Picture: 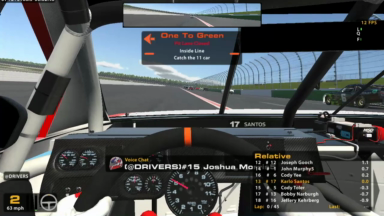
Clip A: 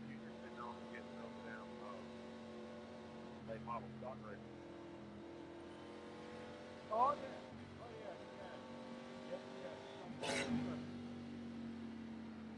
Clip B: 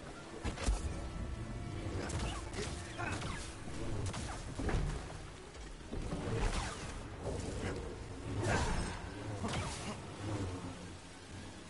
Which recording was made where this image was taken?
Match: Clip A